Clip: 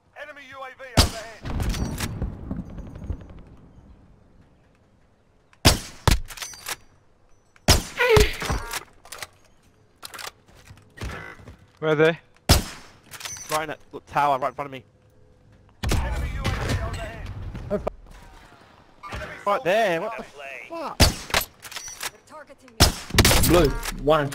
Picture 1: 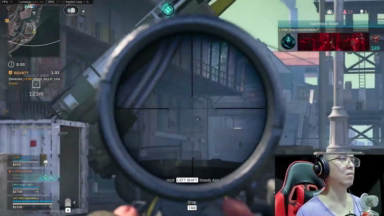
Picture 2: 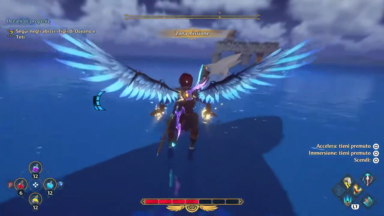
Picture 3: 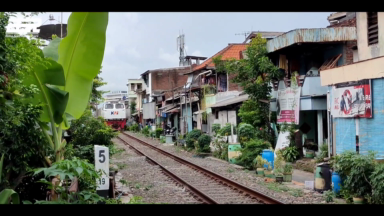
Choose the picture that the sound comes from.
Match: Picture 1